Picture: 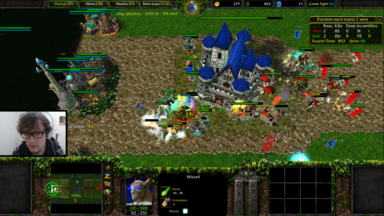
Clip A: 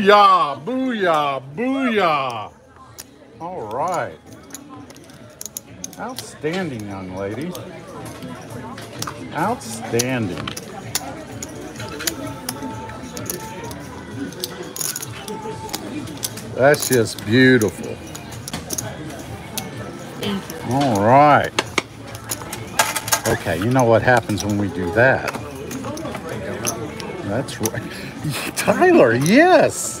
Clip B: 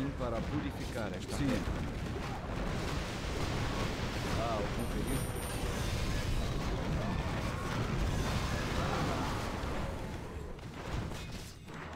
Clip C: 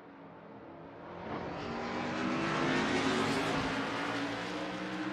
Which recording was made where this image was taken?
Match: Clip B